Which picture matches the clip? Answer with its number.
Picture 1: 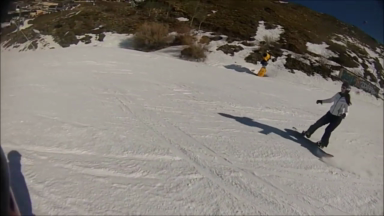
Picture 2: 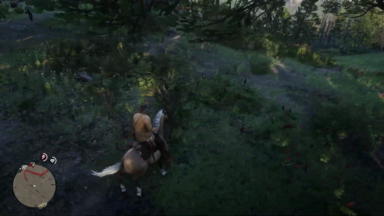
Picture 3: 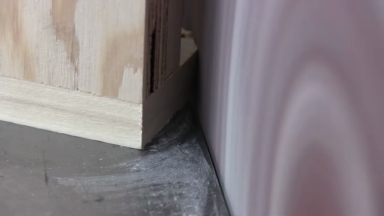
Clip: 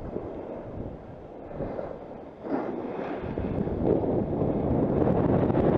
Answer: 1